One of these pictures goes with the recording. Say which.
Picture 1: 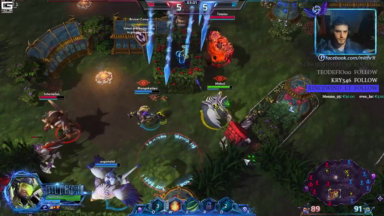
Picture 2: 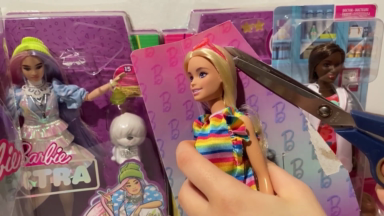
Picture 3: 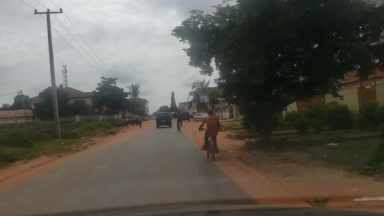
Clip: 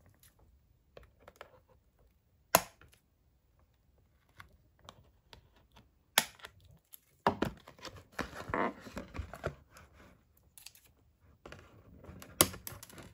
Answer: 2